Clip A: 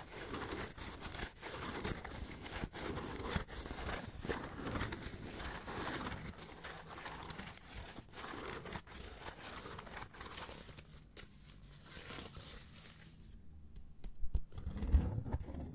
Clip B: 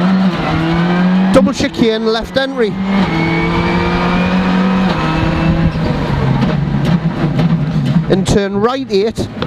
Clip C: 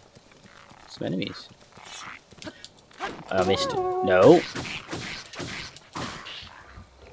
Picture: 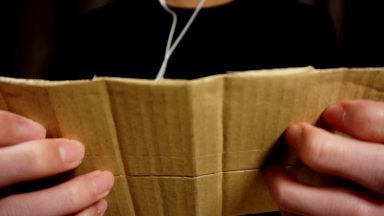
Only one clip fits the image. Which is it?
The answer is A